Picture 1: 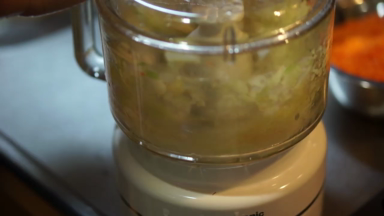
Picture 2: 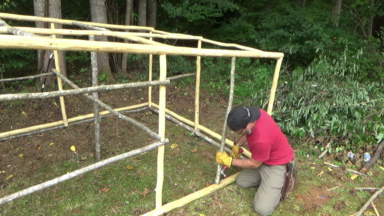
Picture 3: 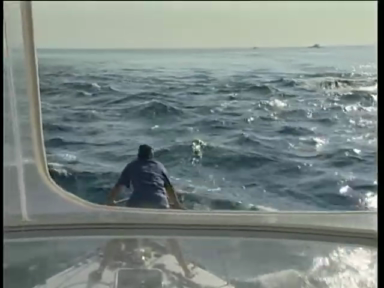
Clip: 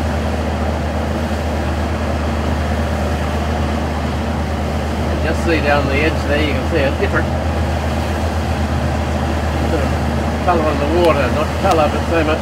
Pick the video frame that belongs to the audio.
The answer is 3